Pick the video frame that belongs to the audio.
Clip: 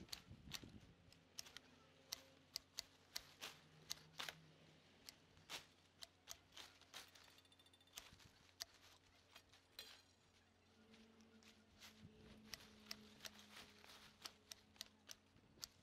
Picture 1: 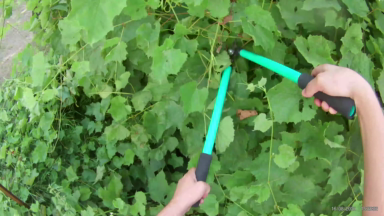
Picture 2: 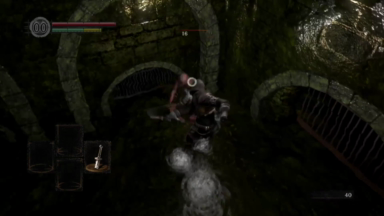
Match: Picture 1